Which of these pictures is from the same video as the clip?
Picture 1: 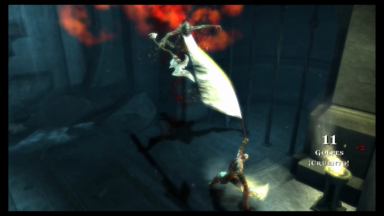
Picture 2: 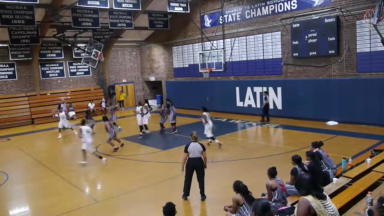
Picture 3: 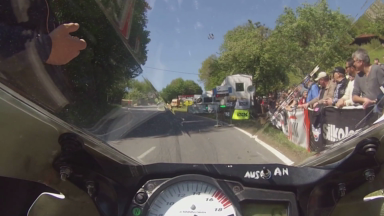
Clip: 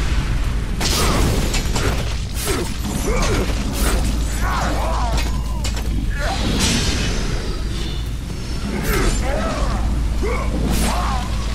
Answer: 1